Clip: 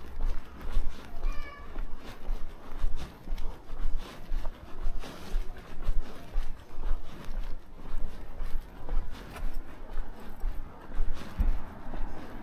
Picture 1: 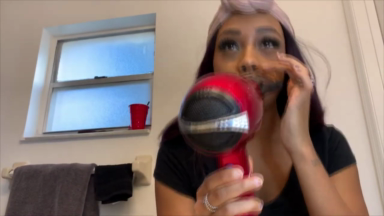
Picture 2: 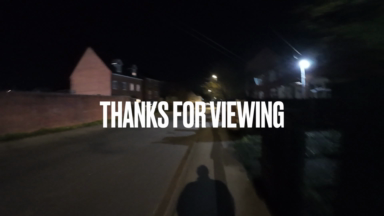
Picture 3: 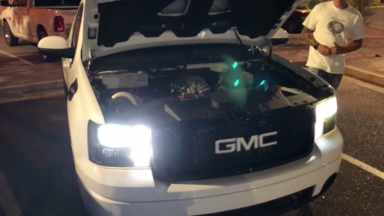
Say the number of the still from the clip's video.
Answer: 2